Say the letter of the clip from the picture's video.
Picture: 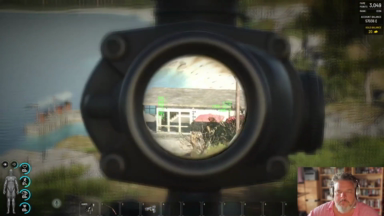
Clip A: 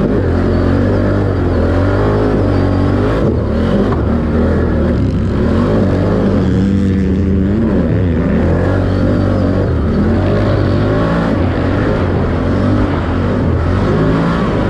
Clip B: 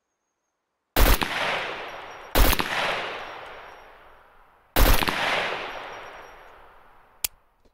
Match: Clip B